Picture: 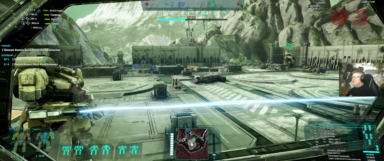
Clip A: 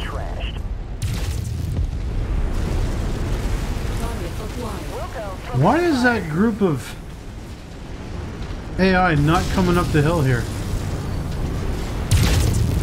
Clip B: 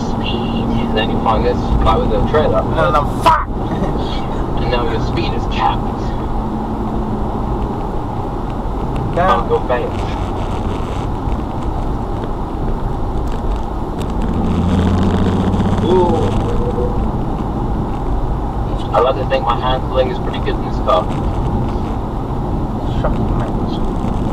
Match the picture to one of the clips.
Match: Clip A